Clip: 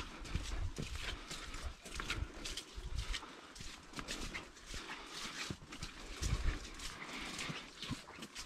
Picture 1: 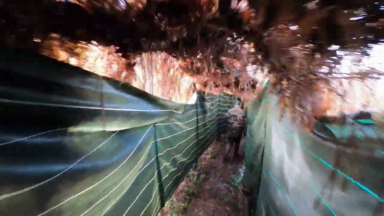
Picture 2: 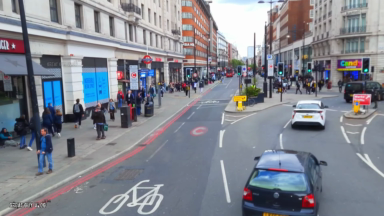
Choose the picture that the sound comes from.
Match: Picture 1